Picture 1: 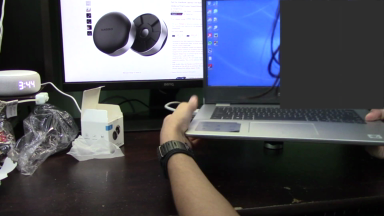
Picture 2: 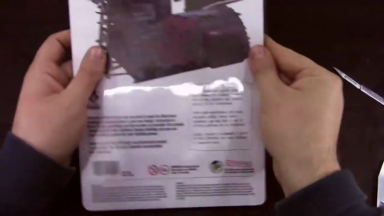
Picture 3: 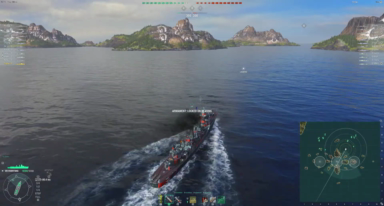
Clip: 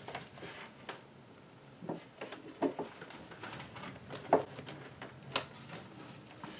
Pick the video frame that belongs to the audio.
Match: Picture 1